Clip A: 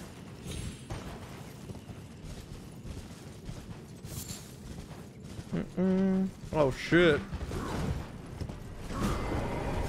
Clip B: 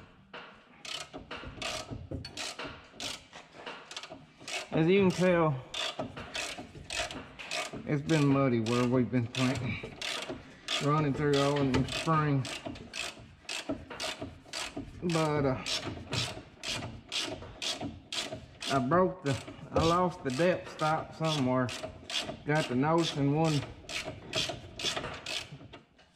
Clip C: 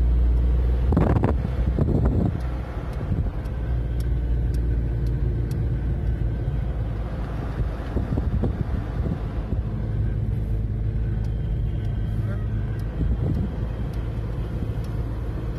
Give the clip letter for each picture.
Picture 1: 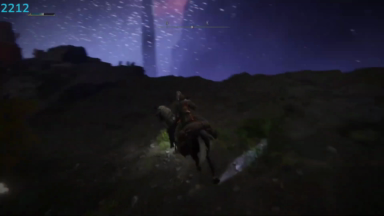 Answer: A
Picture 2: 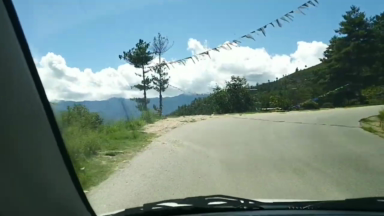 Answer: C